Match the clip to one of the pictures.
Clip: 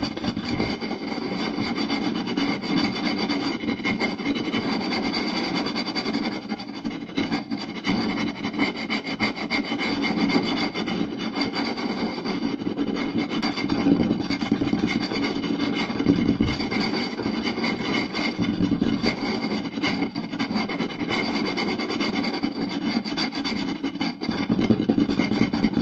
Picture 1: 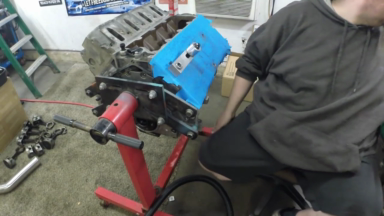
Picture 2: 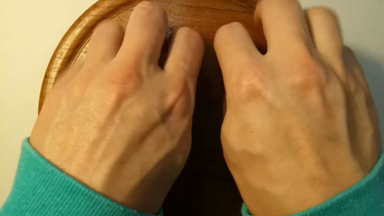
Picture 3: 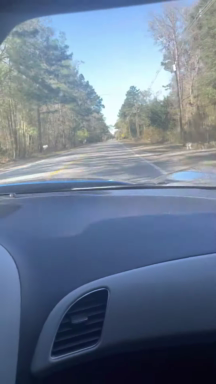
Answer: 2